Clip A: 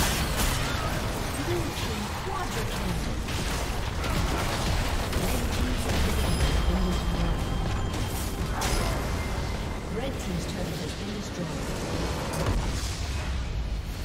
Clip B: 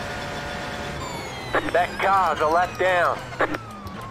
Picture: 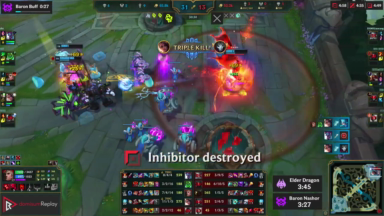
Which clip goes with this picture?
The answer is A